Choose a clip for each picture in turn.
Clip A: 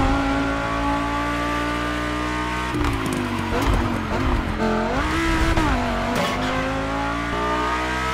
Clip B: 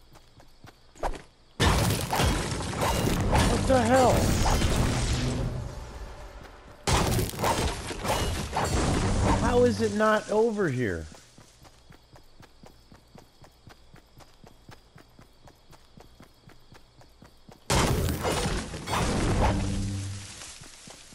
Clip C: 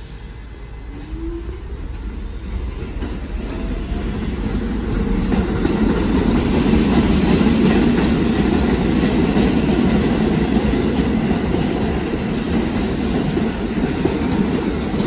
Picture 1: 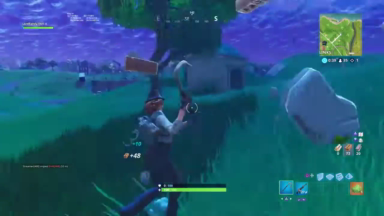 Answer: B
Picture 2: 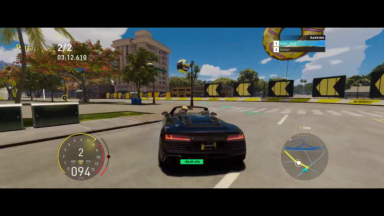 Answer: A